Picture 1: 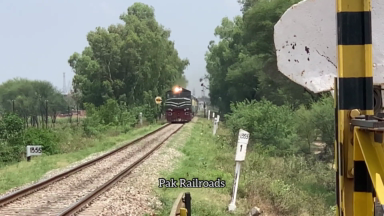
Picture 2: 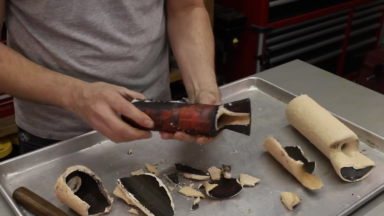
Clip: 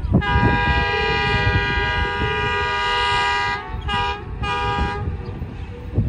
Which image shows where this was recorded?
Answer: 1